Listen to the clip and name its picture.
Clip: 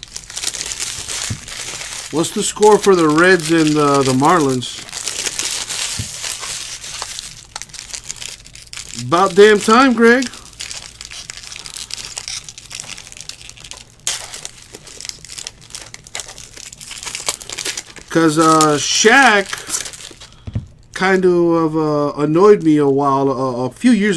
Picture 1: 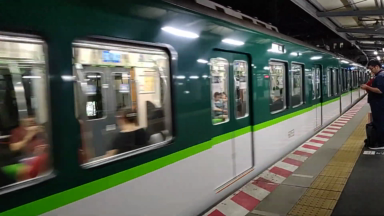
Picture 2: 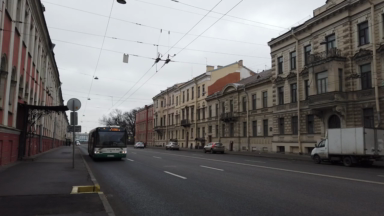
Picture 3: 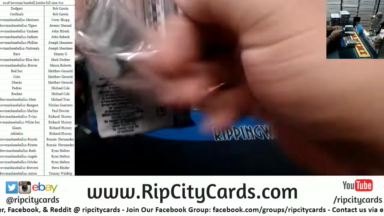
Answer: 3